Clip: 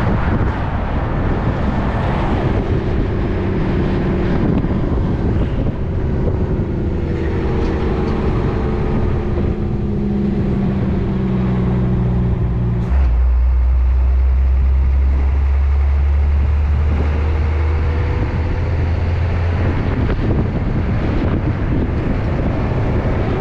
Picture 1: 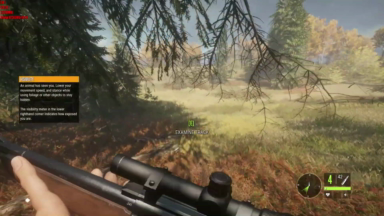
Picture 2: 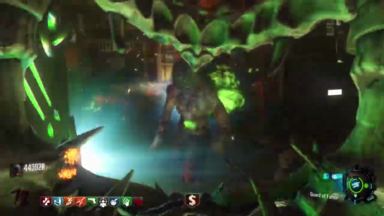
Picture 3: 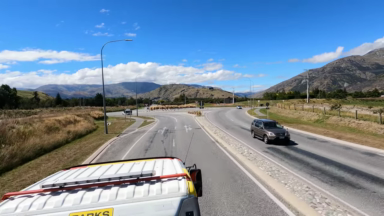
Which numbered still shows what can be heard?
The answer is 3